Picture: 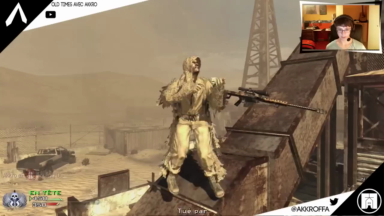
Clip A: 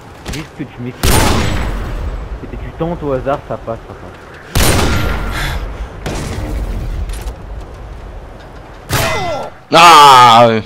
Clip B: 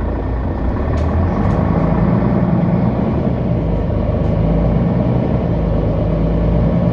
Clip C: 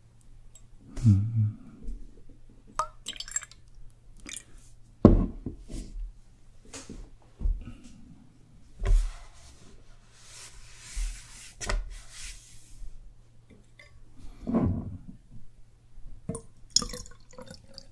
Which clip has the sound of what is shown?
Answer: A